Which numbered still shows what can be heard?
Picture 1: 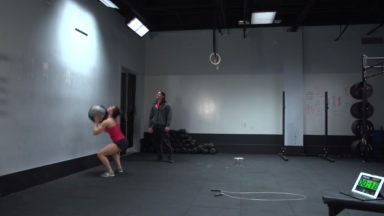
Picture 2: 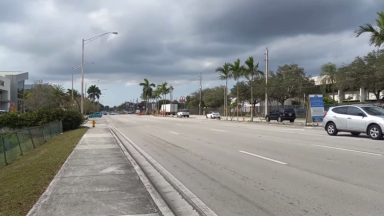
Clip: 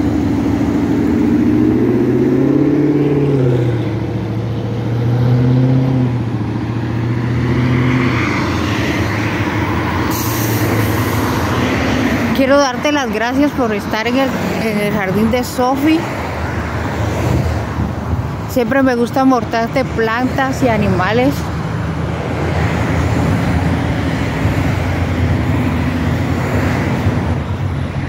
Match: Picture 2